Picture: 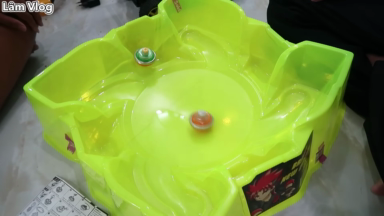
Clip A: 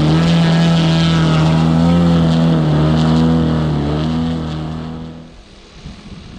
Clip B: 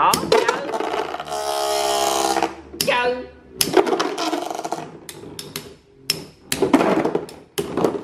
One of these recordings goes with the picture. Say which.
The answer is B